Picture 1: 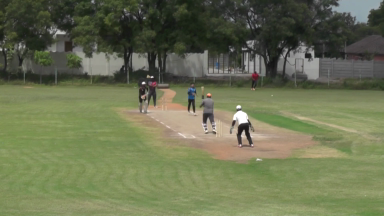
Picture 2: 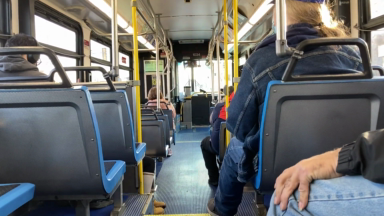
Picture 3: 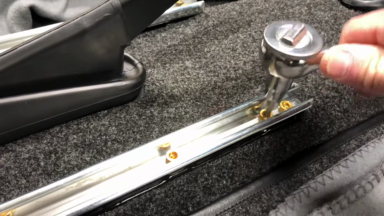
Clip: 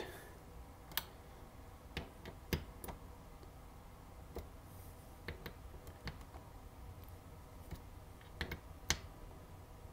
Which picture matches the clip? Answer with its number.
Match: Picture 3